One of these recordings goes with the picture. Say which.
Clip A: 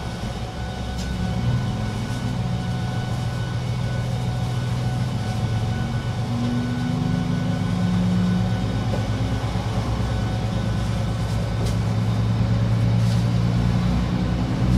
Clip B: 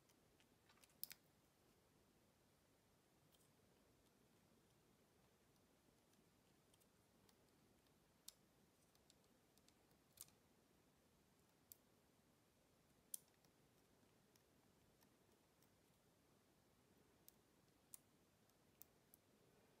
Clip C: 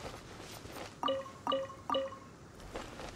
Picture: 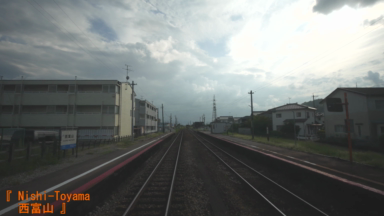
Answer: A